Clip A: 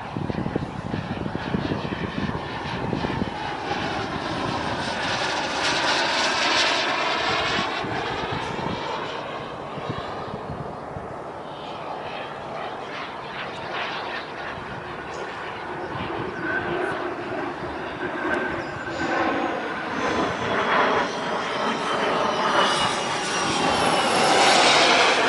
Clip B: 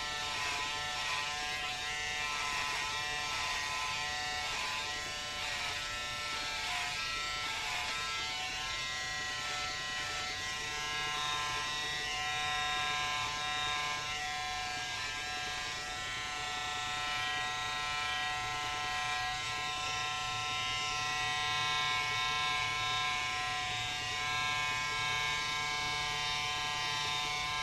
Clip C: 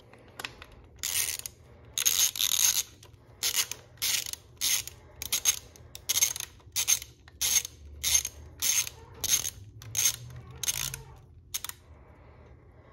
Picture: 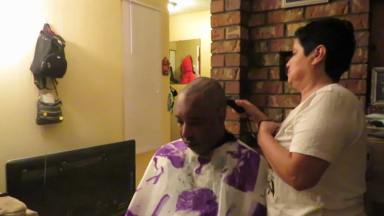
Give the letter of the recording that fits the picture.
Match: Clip B